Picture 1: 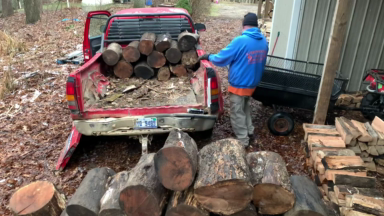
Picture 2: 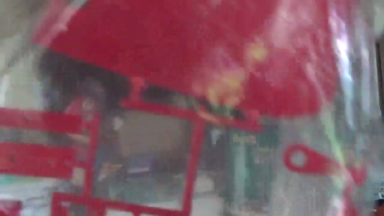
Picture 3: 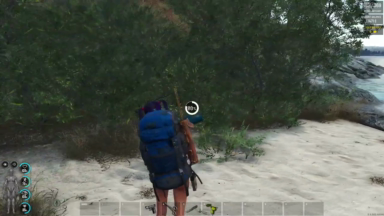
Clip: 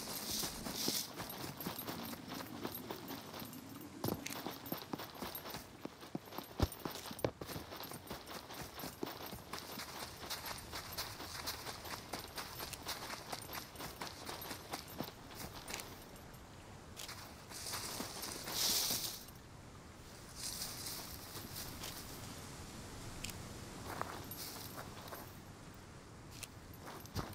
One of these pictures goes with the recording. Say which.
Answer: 3